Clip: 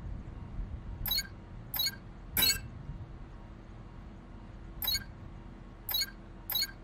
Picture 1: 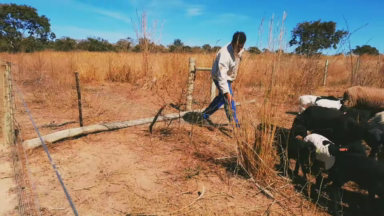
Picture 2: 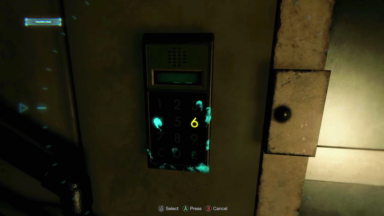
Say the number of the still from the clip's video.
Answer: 2